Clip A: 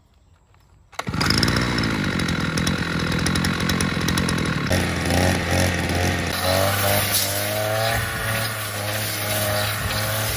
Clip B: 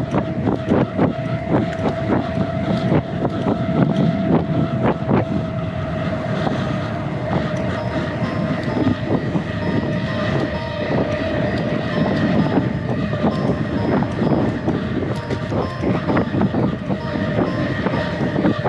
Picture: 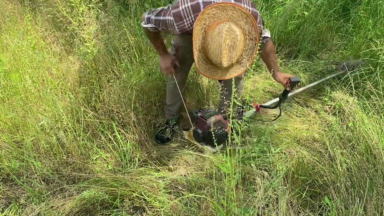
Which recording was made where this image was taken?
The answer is A